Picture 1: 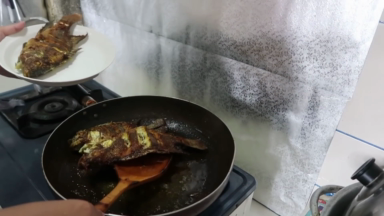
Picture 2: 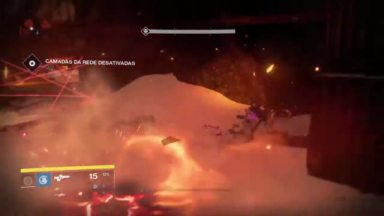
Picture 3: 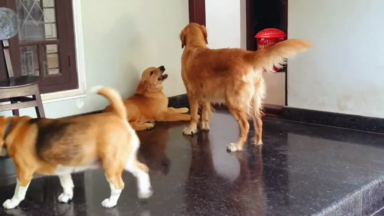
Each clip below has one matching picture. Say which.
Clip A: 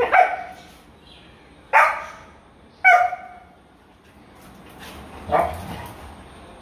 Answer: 3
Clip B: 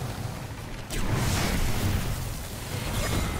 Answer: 2